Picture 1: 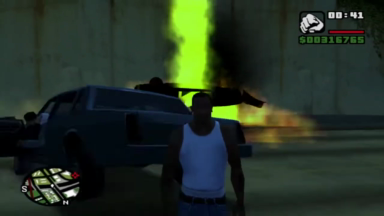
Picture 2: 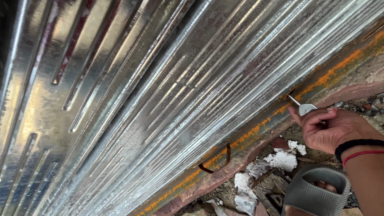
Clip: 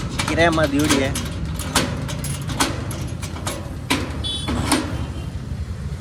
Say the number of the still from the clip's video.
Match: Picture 2